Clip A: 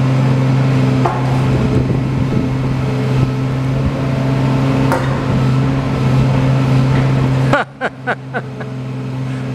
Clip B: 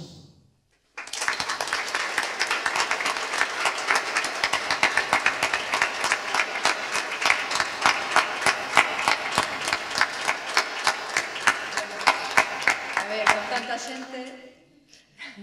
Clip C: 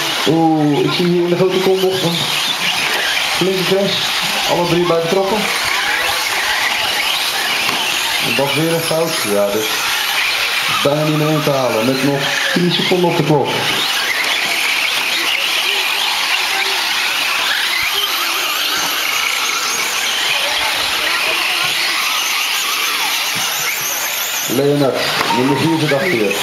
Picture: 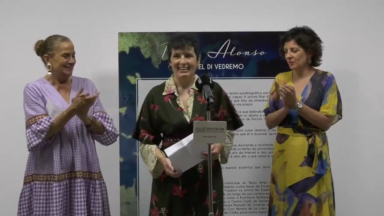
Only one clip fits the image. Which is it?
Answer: B